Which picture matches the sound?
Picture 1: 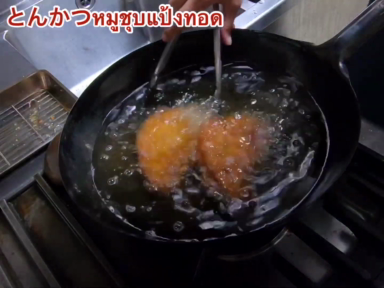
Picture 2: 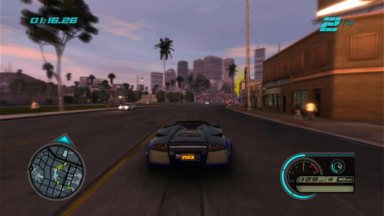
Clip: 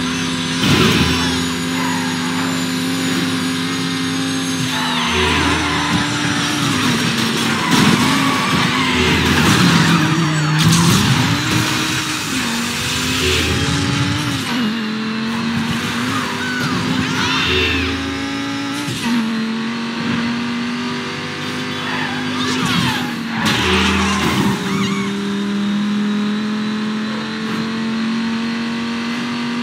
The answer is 2